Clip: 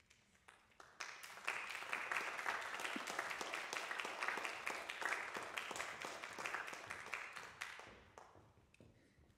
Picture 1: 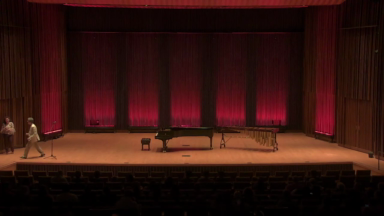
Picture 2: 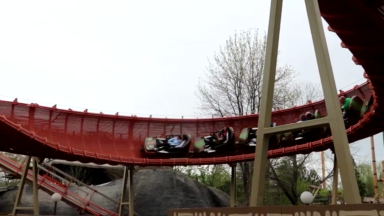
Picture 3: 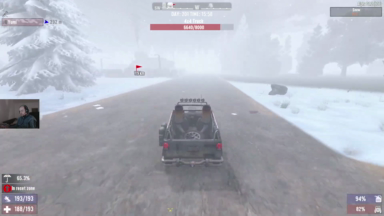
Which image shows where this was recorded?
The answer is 1